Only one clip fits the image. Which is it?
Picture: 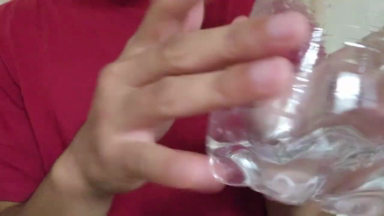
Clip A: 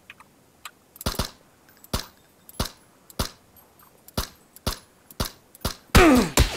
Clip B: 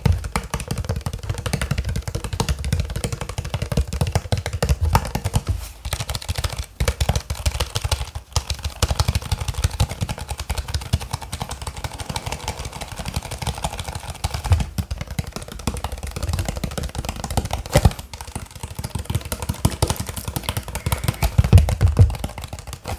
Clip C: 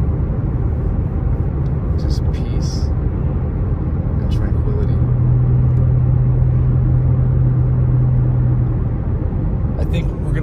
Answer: B